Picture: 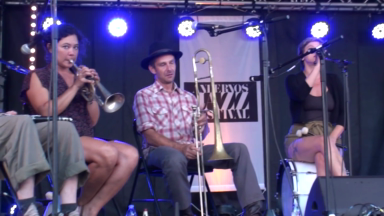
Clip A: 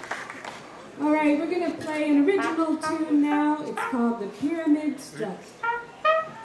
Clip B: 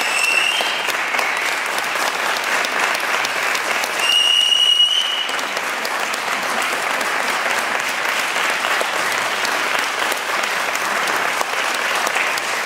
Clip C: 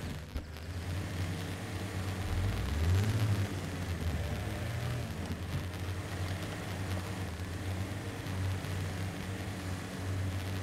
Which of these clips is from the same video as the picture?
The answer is A